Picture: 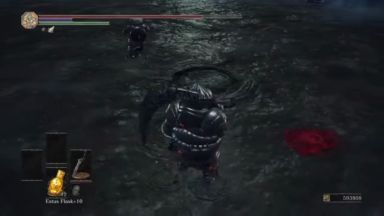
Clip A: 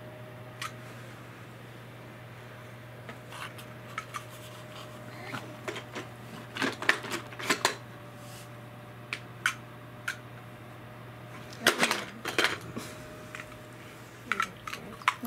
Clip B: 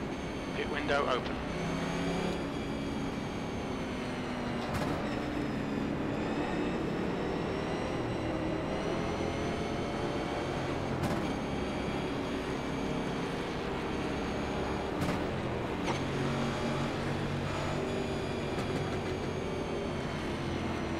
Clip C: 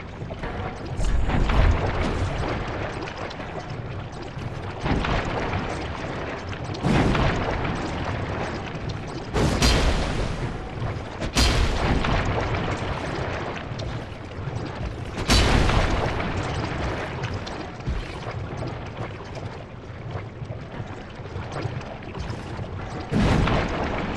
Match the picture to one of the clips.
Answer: C